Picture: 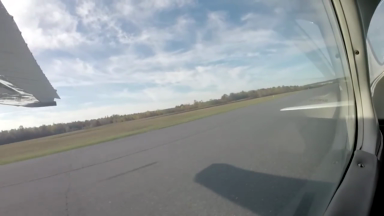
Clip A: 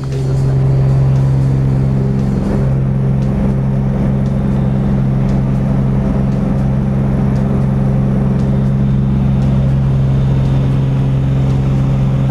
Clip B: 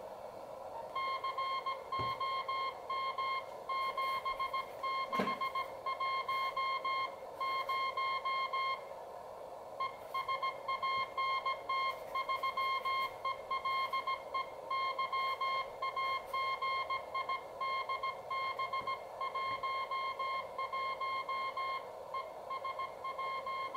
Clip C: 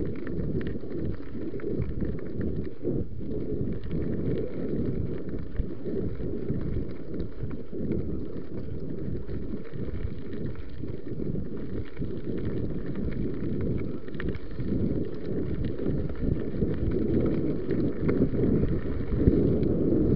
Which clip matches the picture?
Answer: A